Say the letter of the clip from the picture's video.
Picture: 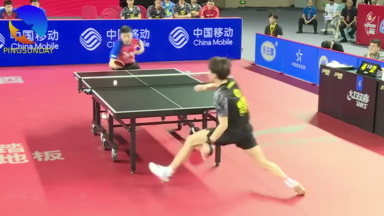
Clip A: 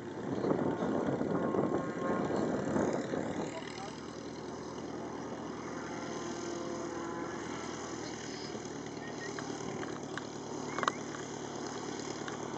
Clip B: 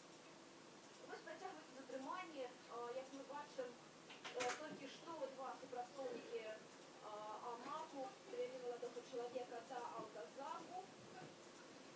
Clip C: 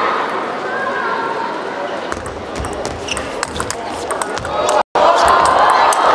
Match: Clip C